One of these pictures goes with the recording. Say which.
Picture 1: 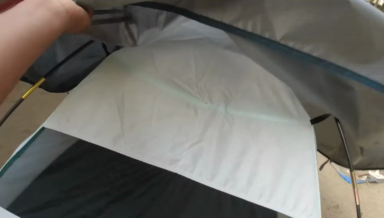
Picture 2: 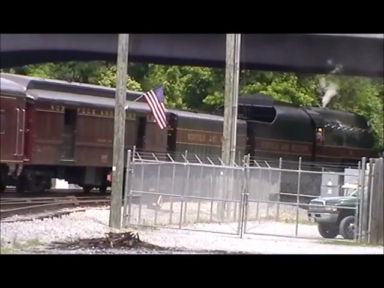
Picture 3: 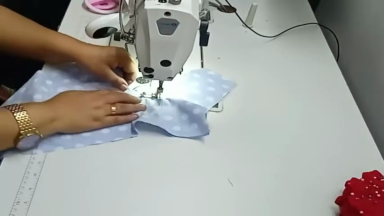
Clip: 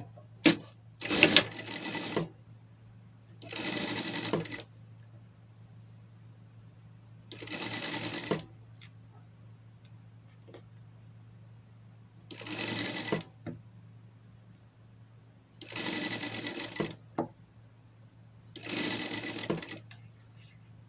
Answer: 3